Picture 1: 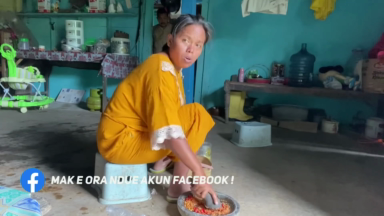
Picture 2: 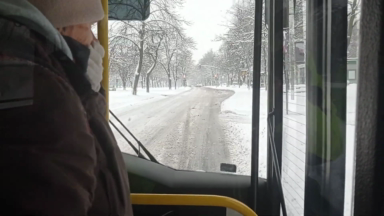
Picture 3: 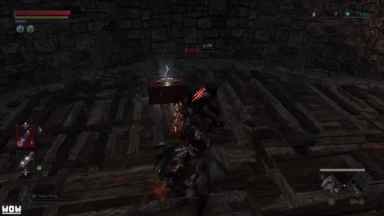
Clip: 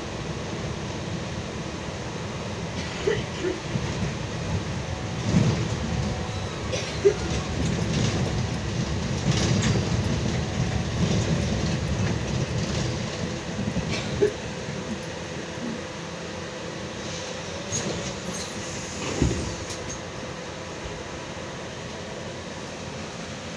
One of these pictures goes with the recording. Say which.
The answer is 2